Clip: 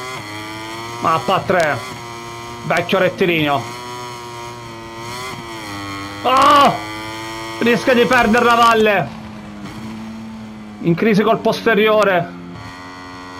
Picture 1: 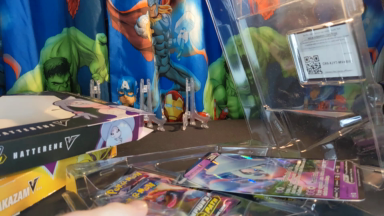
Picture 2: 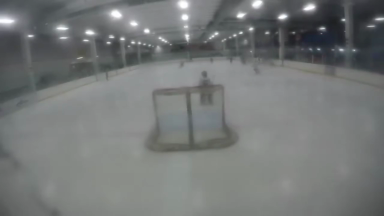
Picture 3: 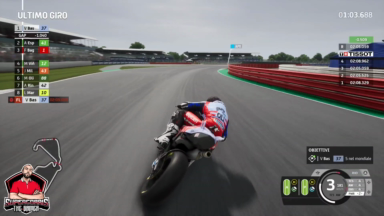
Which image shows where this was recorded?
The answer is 3